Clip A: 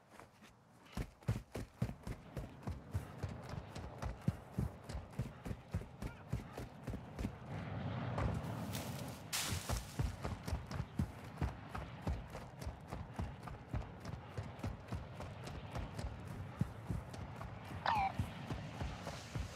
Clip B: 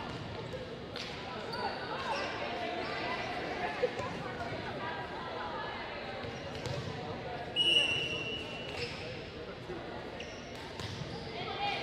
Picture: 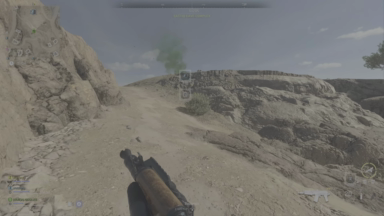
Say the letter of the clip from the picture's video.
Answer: A